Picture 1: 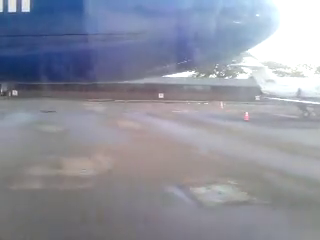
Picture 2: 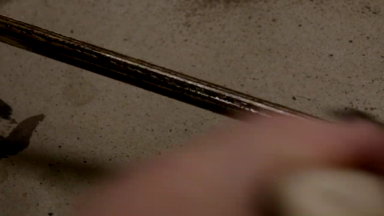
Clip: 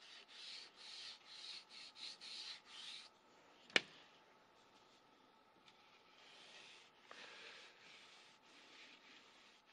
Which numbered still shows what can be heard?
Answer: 2